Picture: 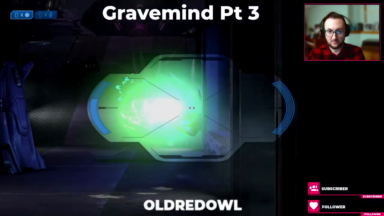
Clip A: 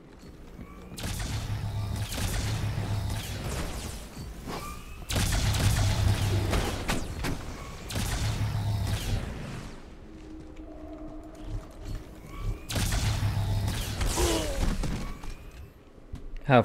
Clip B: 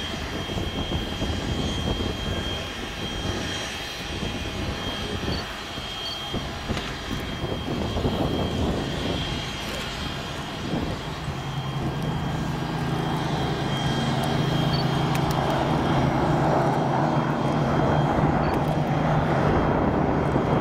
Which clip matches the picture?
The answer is A